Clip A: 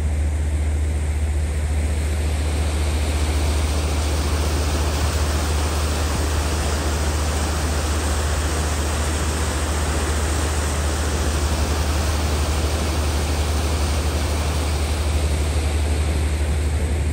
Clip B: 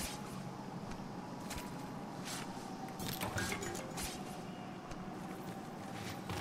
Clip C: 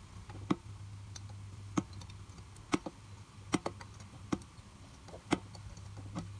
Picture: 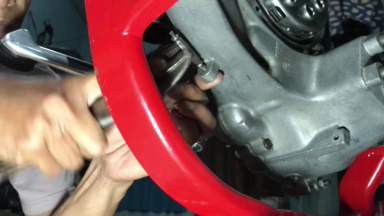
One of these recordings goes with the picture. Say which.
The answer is C